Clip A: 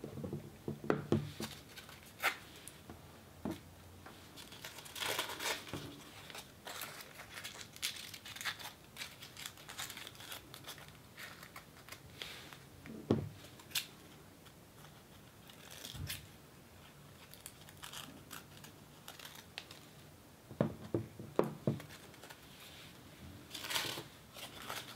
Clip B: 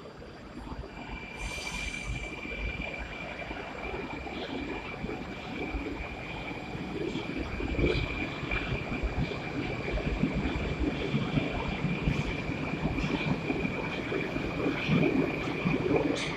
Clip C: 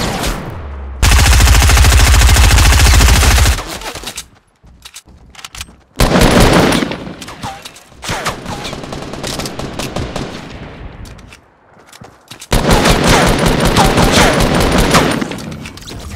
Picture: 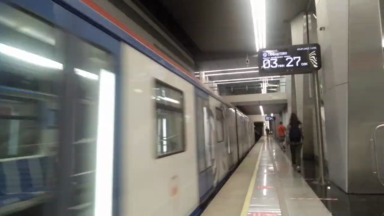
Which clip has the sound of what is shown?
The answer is B